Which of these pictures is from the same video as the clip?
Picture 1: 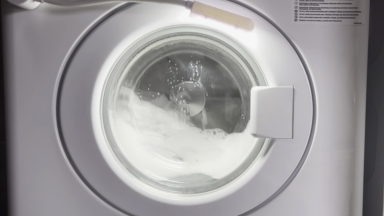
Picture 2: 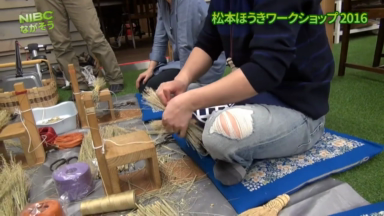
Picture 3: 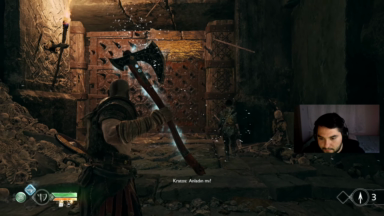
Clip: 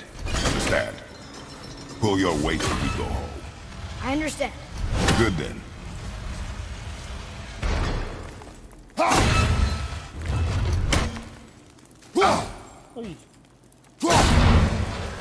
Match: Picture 3